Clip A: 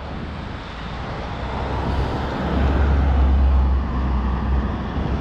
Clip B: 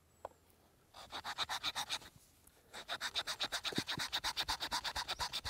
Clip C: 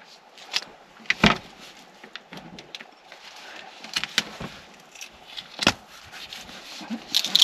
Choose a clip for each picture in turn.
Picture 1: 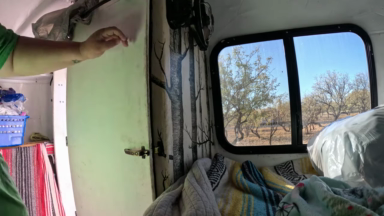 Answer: C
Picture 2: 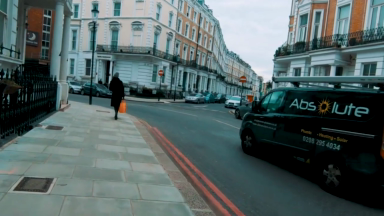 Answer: A